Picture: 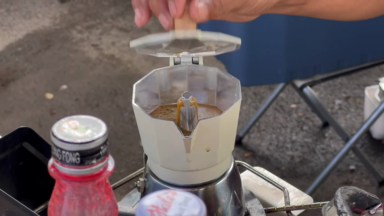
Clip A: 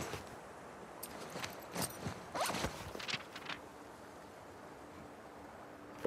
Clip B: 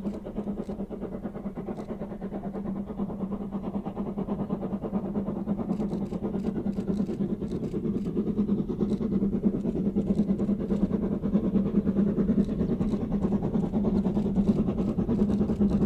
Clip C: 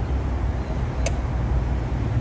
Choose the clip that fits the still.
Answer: C